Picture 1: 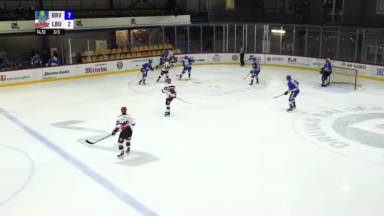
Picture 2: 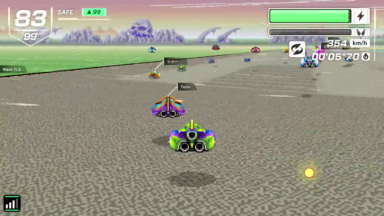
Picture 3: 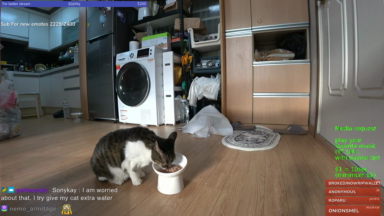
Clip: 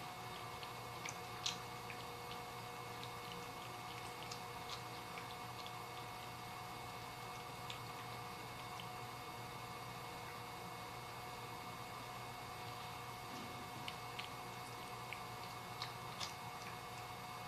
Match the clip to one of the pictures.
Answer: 3